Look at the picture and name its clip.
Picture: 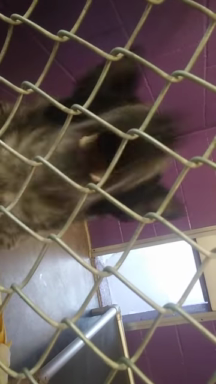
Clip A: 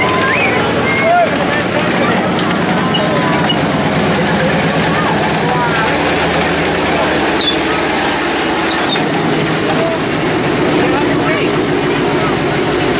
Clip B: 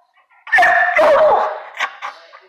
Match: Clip B